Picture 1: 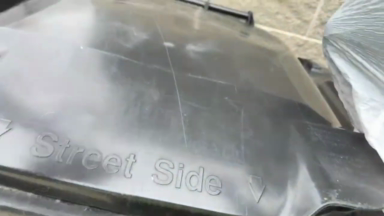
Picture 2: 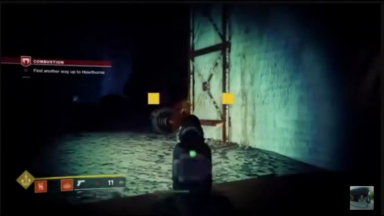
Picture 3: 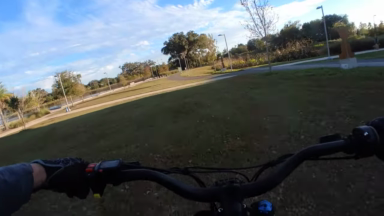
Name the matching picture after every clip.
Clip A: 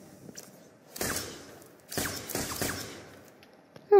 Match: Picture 2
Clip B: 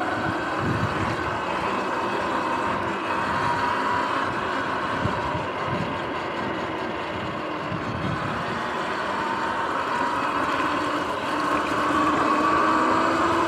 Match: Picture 3